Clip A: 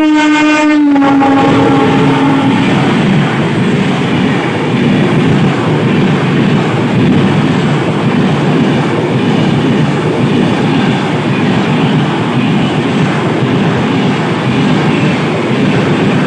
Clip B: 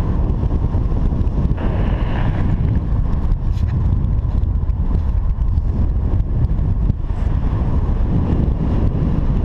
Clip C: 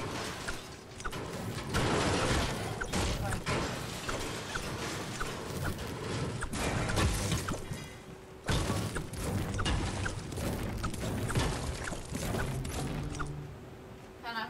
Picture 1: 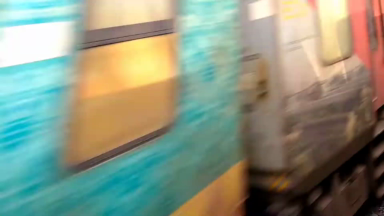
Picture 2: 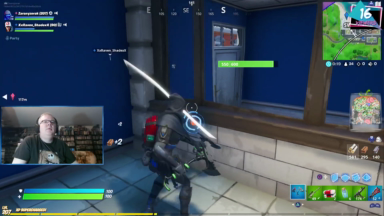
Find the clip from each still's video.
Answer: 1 A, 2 C